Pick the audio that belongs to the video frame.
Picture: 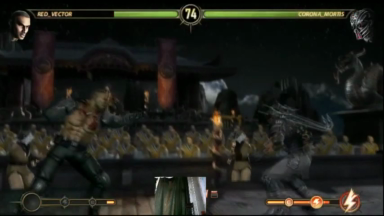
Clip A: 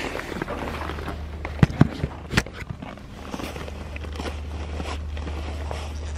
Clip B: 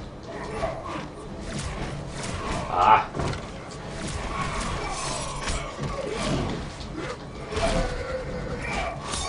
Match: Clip B